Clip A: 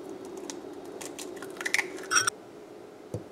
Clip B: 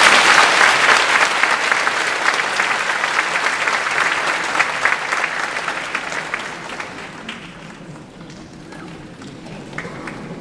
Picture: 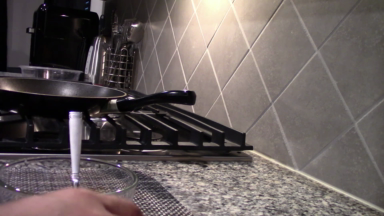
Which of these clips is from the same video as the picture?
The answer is A